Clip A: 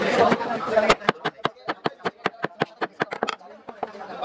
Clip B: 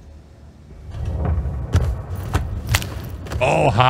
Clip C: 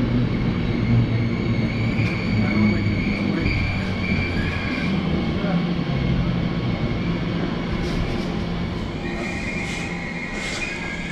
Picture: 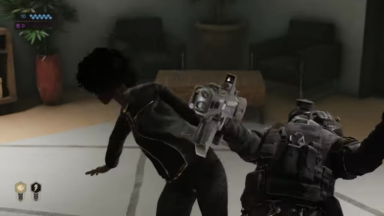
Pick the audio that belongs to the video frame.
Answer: B